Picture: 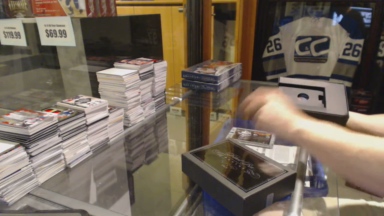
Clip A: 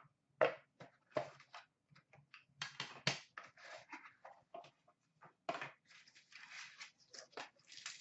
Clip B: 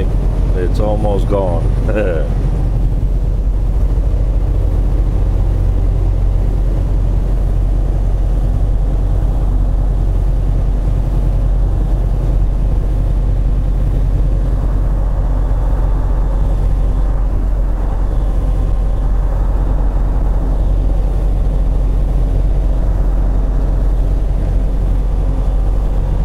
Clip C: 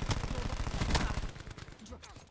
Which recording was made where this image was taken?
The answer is A